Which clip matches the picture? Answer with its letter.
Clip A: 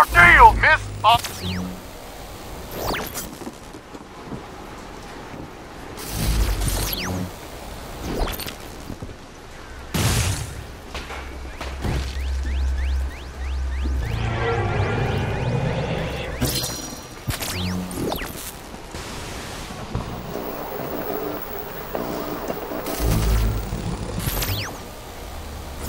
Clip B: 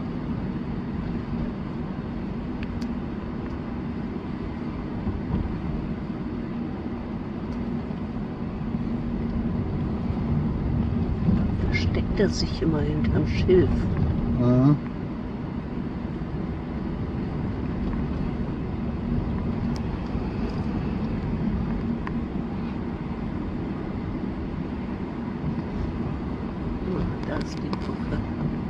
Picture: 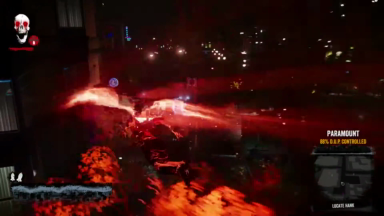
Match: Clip A